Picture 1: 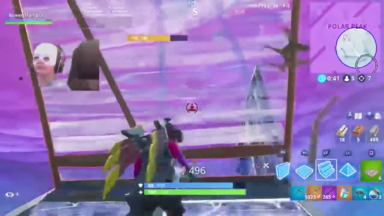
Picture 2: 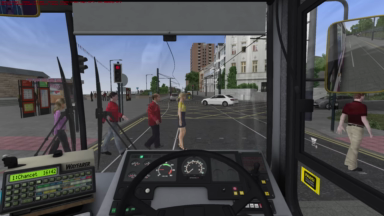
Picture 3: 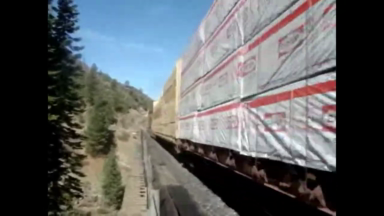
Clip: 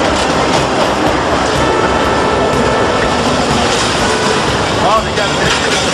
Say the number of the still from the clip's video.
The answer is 3